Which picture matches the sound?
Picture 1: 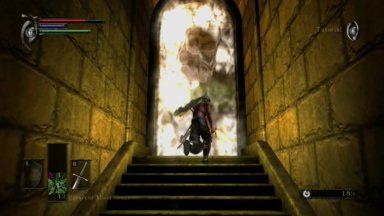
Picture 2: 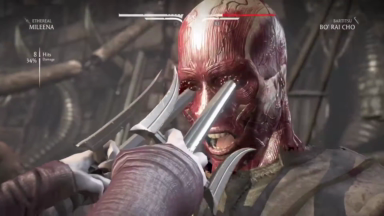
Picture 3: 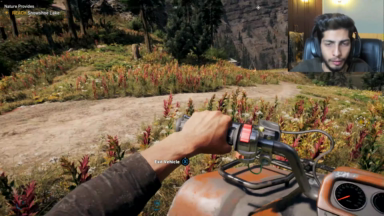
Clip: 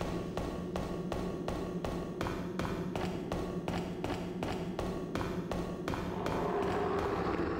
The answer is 1